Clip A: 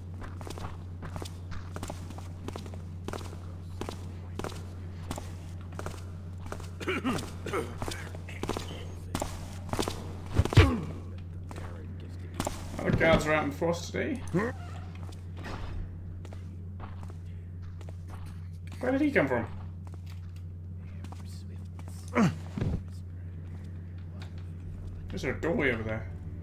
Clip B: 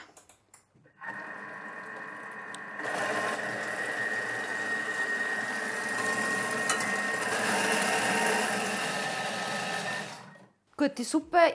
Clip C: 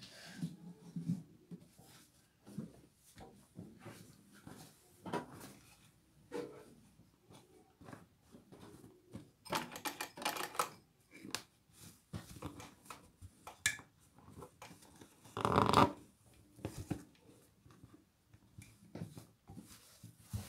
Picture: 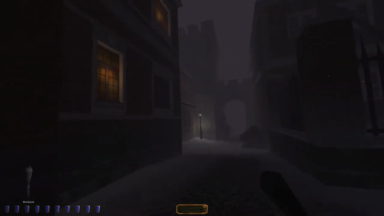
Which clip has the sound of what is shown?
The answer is A